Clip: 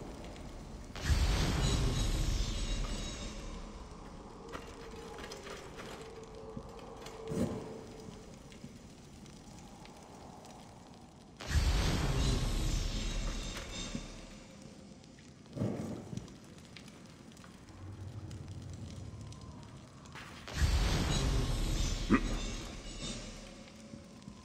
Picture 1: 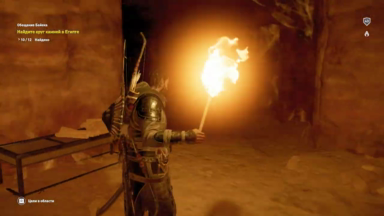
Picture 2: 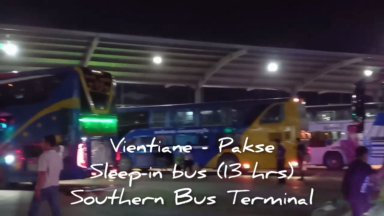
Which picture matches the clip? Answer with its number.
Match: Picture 1